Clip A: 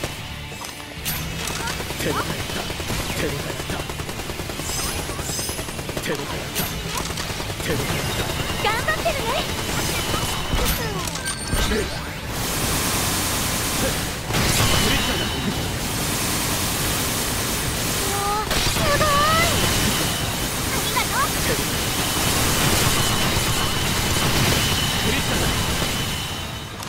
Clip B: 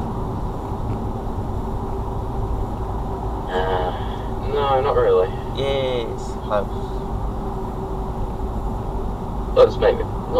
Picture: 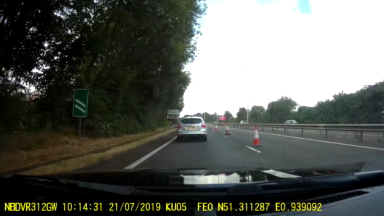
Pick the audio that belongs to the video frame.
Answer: B